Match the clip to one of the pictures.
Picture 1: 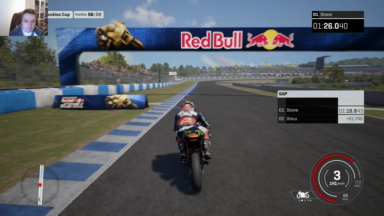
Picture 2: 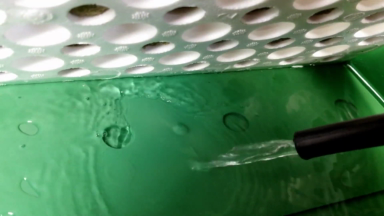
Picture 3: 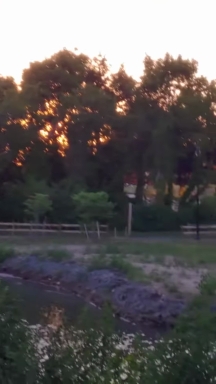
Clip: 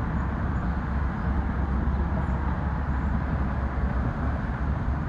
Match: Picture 3